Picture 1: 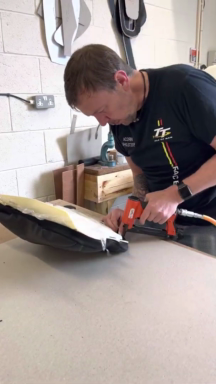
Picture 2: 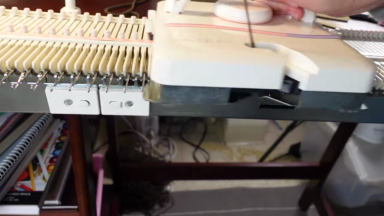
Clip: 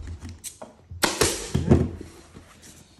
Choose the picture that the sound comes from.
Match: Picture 1